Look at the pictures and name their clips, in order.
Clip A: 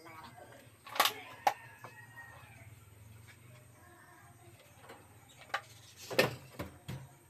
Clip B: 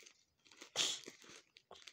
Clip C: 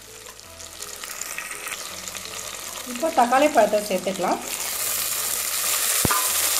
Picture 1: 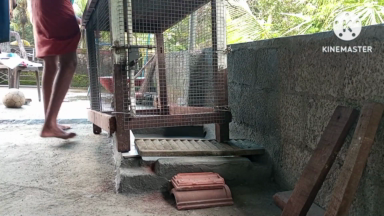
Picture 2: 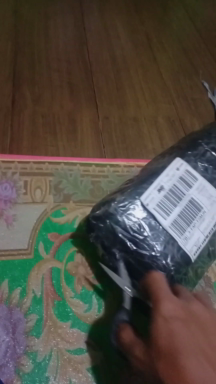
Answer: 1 A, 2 B